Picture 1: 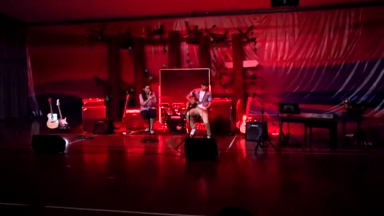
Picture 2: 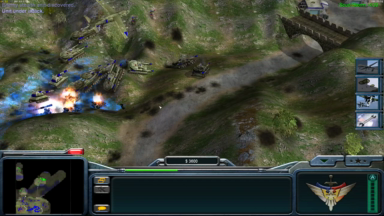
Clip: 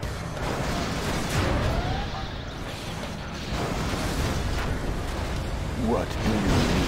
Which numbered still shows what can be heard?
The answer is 2